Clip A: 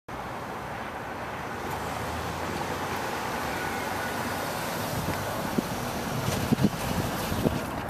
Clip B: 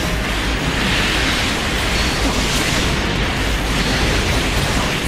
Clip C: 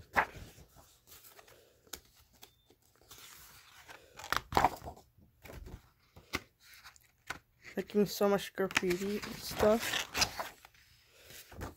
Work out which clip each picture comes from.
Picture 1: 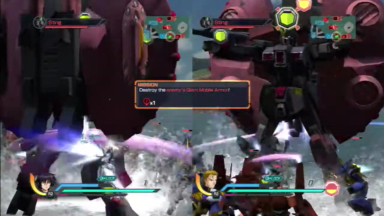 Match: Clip B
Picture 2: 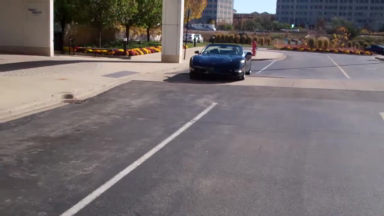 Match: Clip A